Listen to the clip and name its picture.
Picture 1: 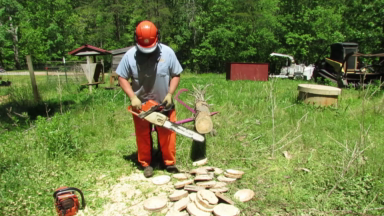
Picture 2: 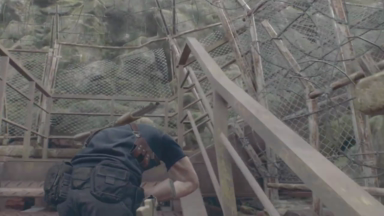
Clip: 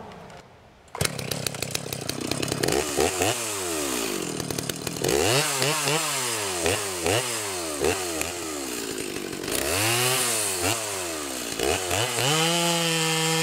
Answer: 1